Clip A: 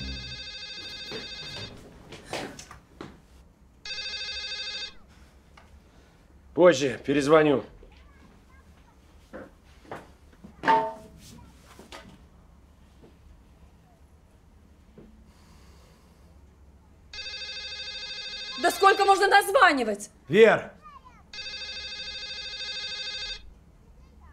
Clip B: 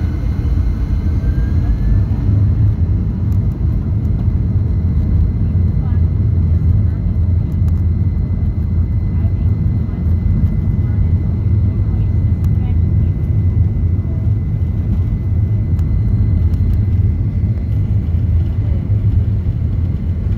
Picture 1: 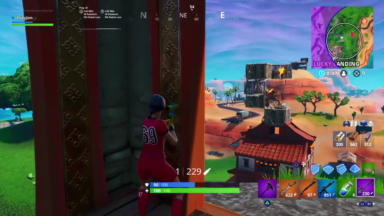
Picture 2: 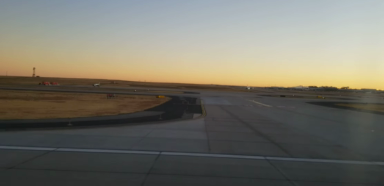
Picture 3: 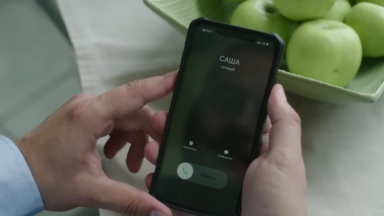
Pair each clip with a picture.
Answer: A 3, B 2